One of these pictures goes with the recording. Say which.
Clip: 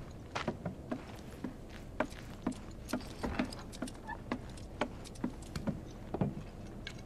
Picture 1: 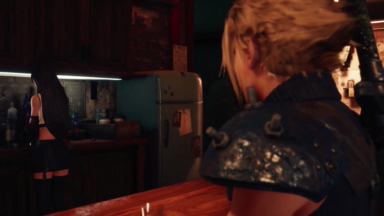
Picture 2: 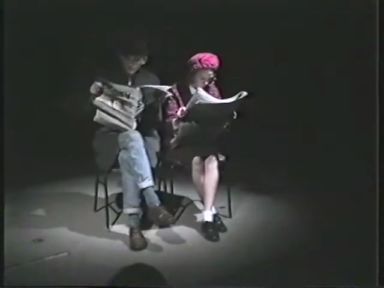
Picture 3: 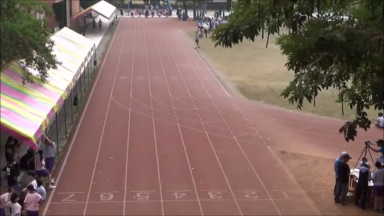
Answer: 1